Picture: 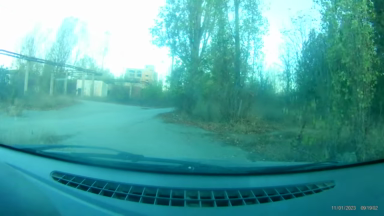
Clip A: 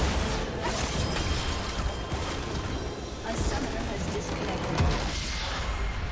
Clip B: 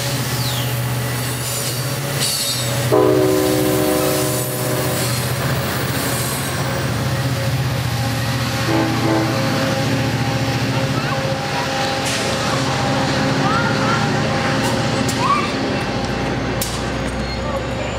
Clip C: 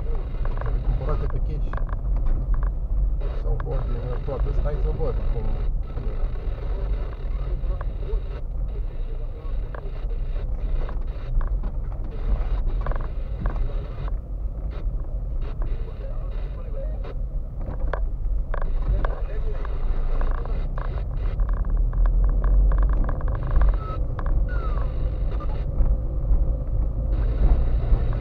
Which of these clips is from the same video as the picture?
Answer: C